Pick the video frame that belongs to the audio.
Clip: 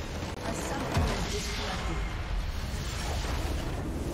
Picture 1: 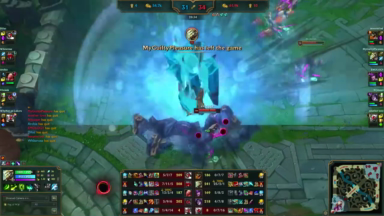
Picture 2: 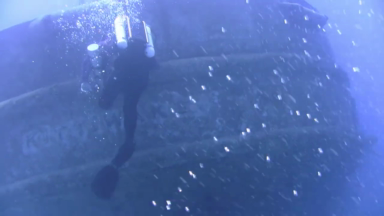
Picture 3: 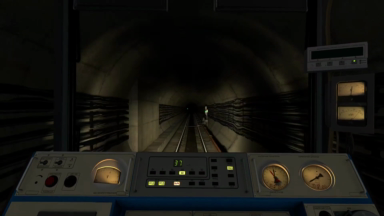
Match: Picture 1